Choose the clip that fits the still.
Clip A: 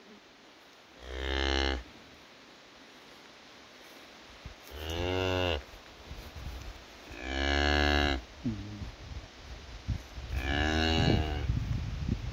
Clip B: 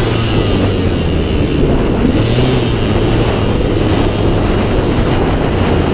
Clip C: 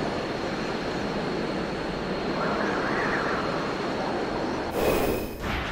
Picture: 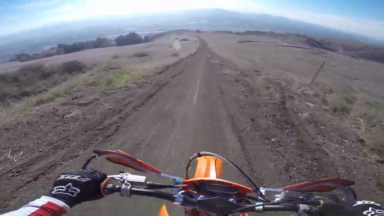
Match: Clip B